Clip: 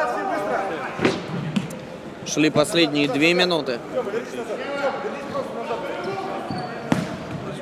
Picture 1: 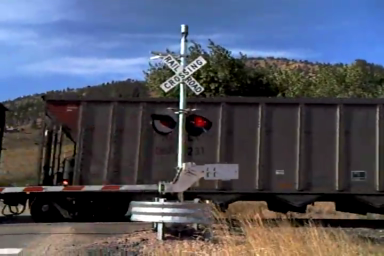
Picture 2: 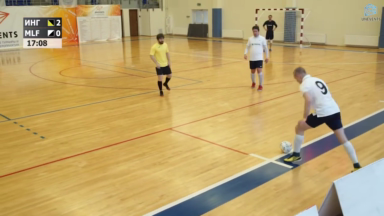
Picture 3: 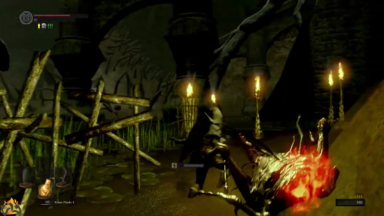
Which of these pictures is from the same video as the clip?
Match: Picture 2